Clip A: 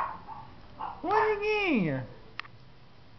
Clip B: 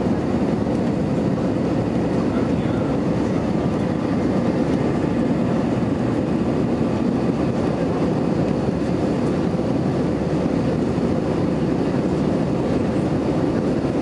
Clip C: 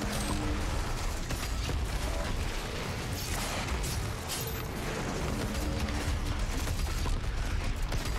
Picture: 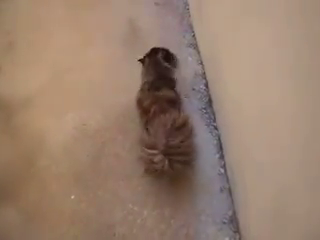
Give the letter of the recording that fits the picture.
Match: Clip A